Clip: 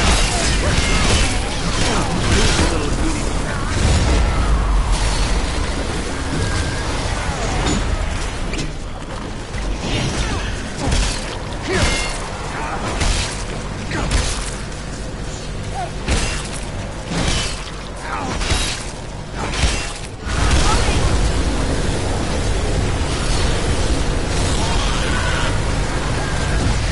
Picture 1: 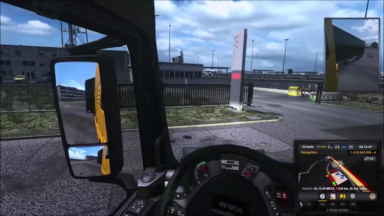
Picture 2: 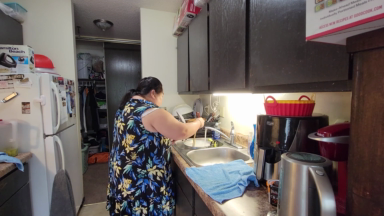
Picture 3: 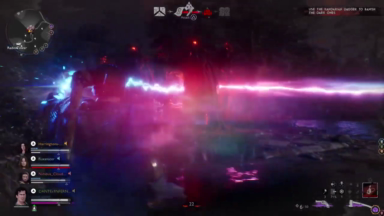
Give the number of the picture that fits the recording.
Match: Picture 3